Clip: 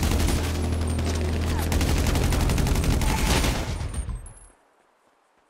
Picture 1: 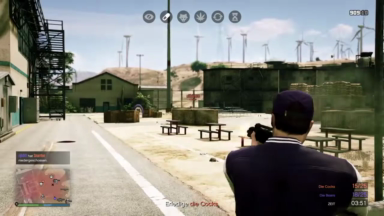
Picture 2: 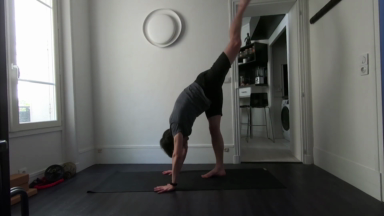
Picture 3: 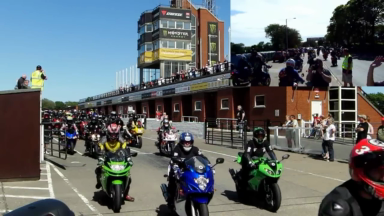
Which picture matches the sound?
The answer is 1